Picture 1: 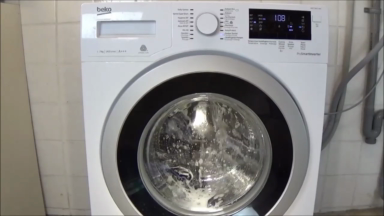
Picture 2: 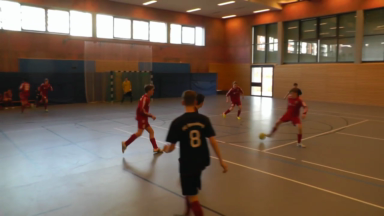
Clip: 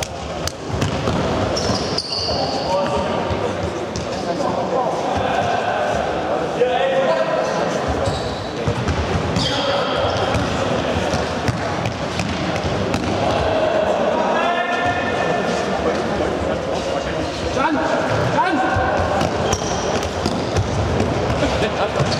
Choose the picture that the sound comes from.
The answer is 2